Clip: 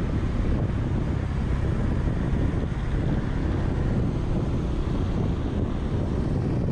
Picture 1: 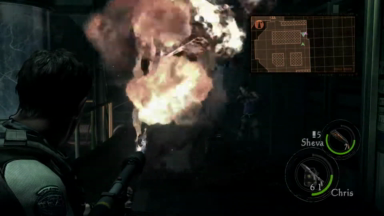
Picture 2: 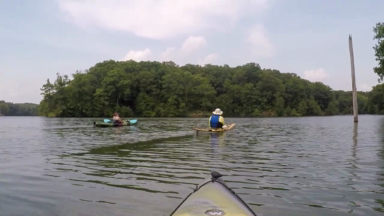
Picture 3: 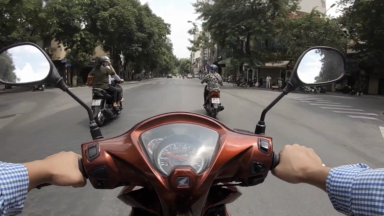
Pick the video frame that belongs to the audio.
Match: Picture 3